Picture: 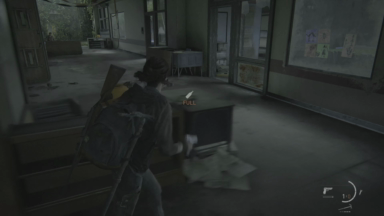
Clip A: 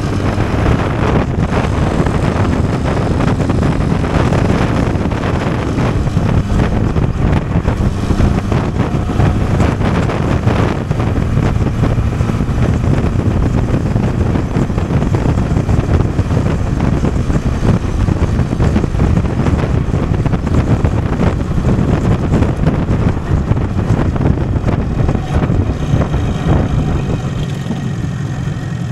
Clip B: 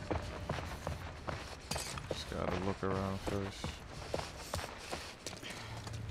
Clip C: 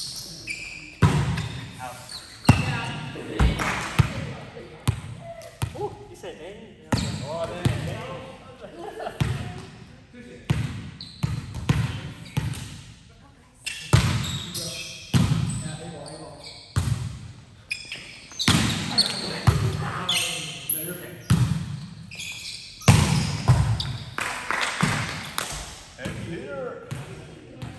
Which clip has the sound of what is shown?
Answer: B